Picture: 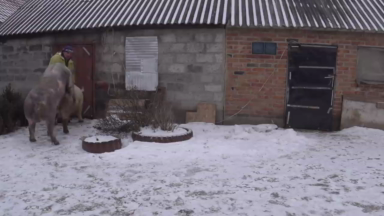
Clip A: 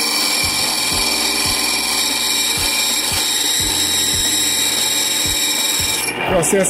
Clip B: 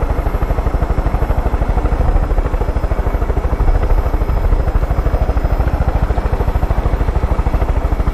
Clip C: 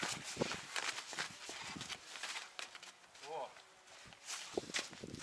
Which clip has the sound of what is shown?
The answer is C